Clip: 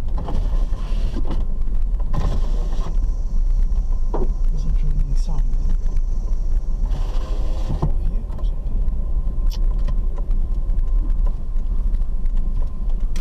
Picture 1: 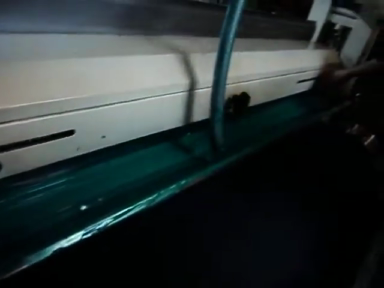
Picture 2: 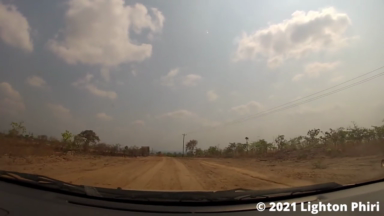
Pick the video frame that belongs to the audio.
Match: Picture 2